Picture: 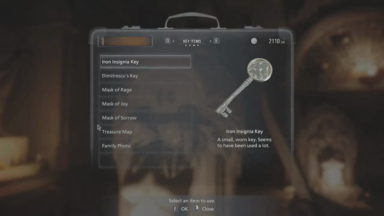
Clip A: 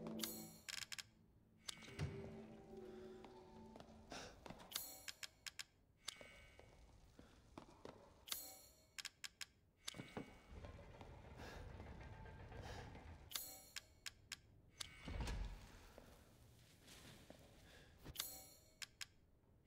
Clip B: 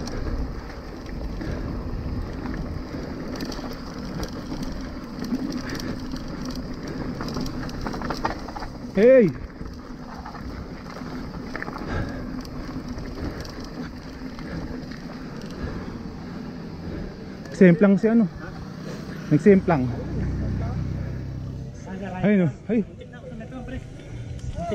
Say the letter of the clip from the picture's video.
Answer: A